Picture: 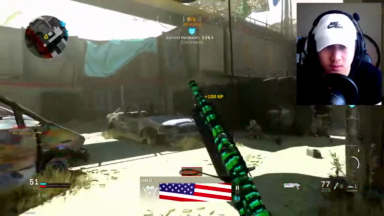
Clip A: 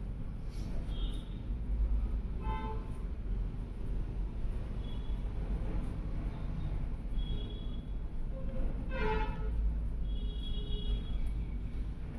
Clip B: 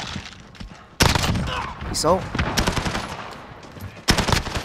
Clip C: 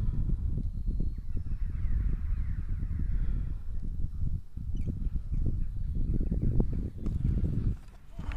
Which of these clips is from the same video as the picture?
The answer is B